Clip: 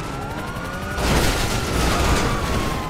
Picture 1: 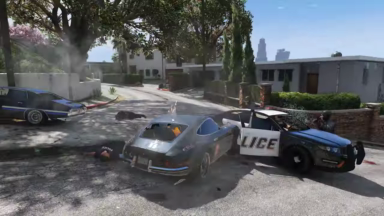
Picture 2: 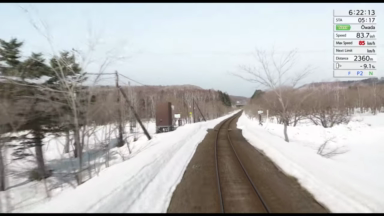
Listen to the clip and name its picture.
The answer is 1